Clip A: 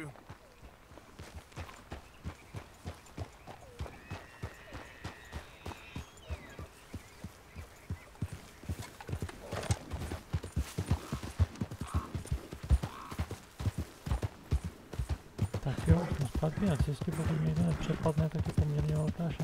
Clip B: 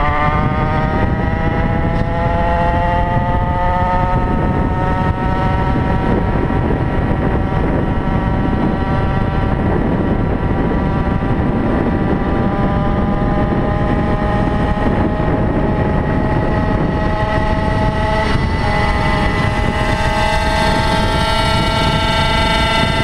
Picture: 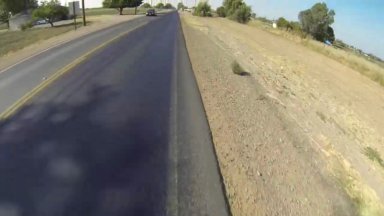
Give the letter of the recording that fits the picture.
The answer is B